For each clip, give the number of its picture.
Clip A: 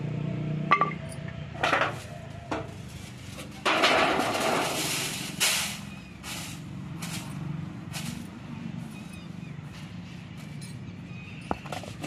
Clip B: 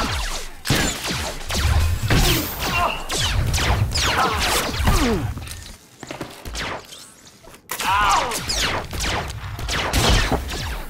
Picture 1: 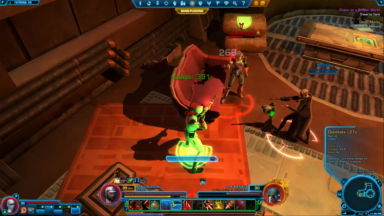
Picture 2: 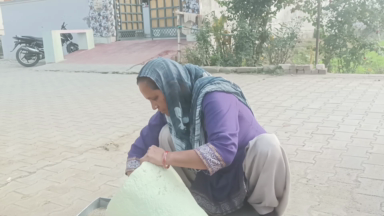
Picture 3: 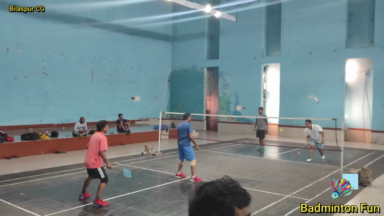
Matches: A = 2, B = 1